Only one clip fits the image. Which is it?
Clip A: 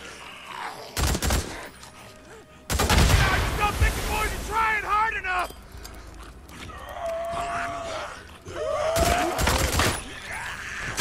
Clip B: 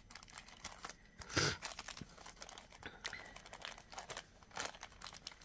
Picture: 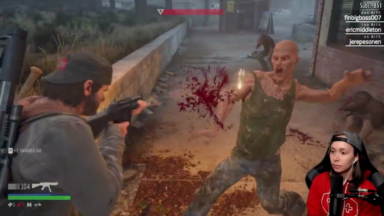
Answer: A